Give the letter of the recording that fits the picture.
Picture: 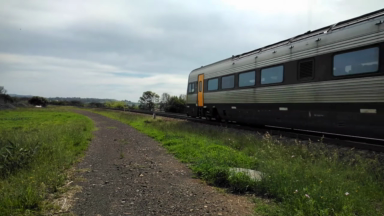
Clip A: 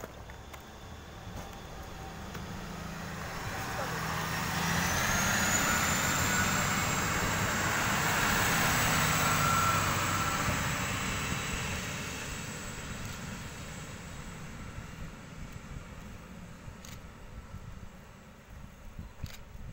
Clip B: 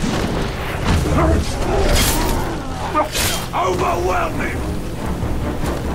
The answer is A